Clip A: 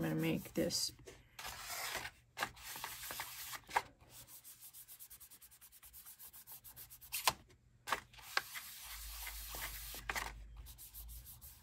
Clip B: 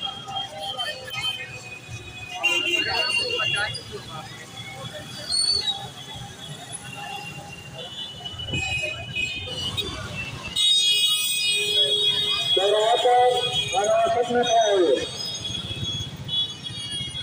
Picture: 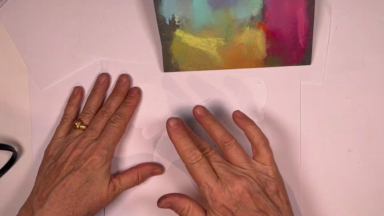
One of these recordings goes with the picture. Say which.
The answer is A